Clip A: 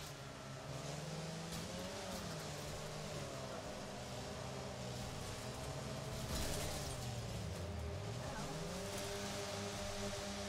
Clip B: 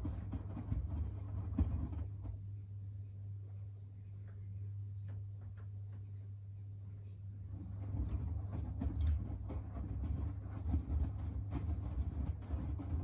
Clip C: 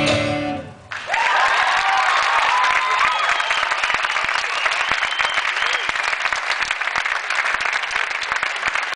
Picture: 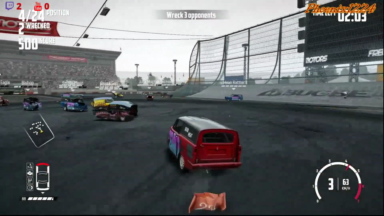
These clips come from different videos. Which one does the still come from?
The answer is A